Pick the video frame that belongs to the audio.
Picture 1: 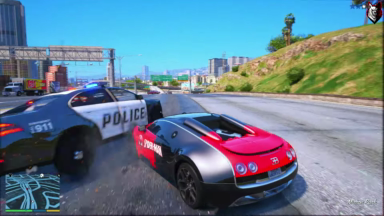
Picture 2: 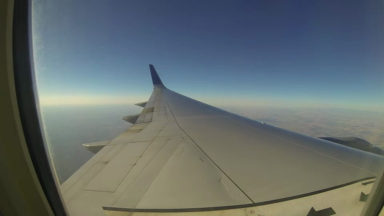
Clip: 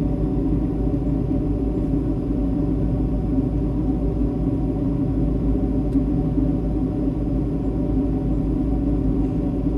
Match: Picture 2